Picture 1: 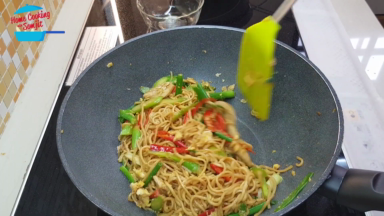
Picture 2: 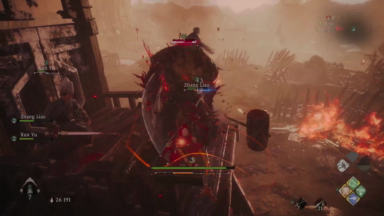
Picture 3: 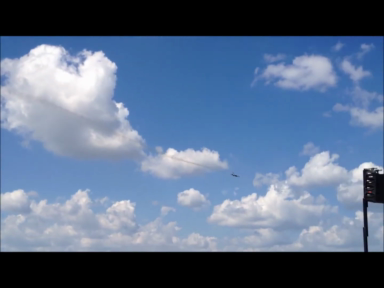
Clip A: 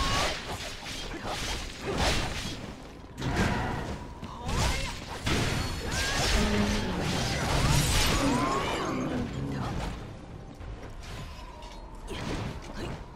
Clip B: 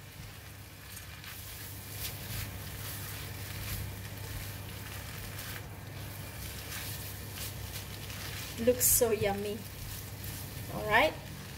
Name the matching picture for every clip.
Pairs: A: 2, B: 1